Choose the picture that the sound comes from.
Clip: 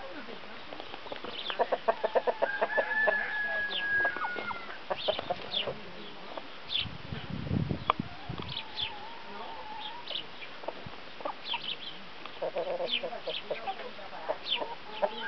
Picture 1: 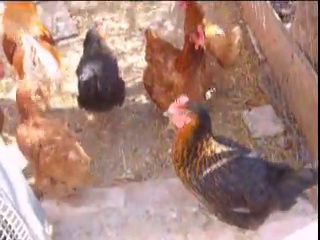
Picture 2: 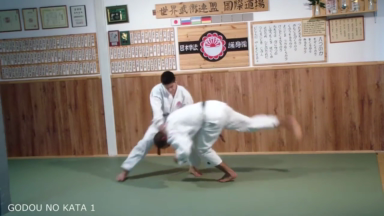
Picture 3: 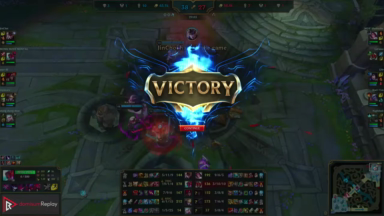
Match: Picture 1